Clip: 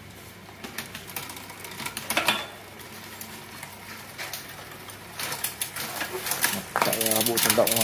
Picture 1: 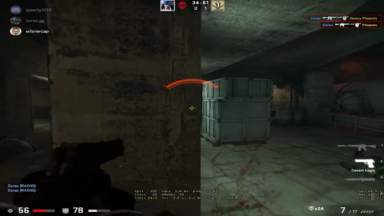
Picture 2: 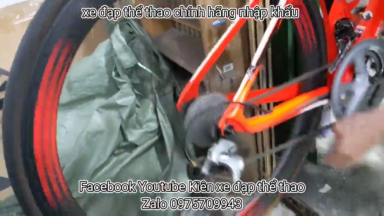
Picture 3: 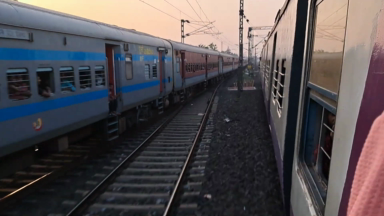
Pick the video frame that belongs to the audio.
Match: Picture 2